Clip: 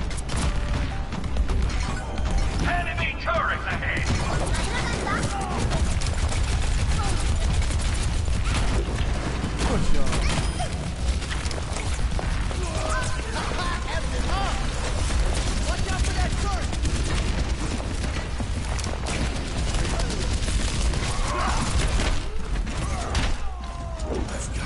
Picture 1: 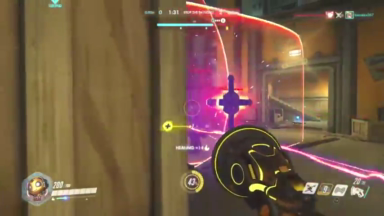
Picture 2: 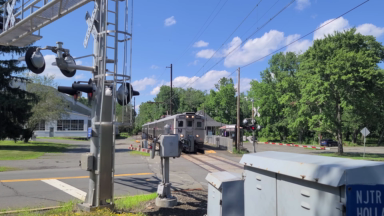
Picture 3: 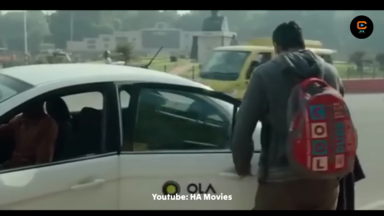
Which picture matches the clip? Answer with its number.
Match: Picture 1